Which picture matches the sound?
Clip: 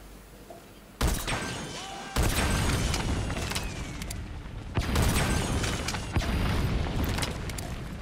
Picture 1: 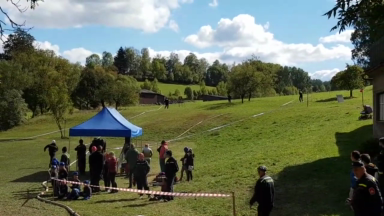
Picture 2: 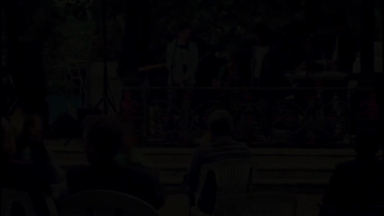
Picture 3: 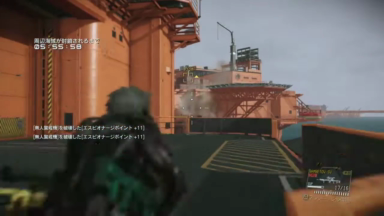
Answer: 3